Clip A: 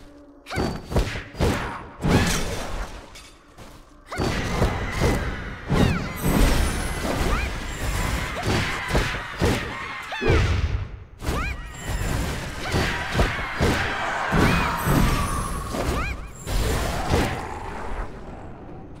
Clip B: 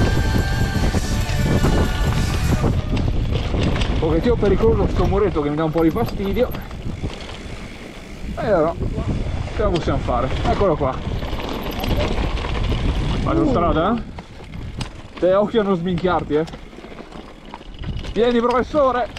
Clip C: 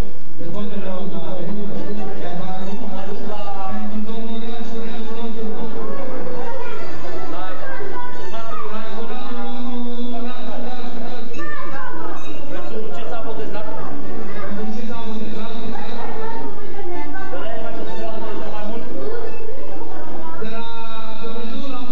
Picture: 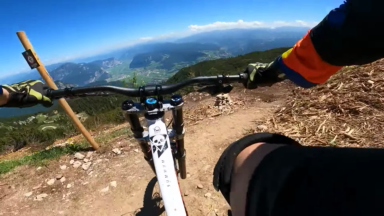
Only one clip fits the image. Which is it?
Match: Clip B